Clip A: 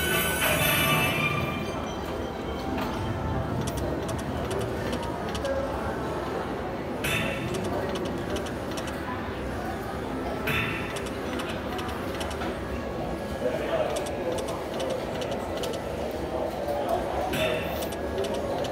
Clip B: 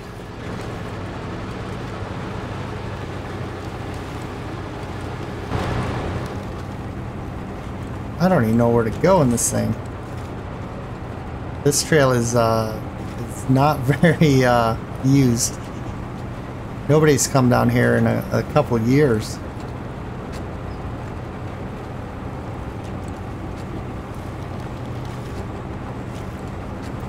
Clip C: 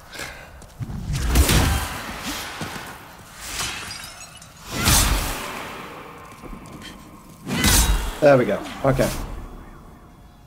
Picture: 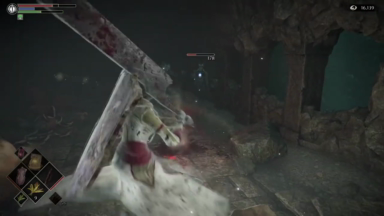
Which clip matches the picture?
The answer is C